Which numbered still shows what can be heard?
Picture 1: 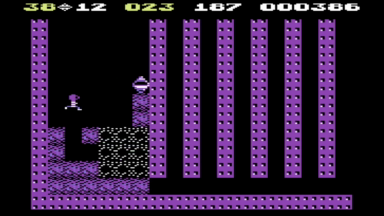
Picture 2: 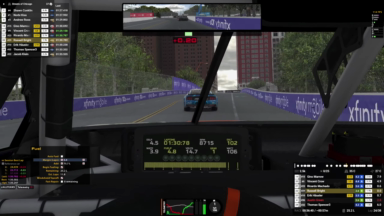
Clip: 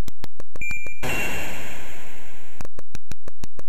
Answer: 1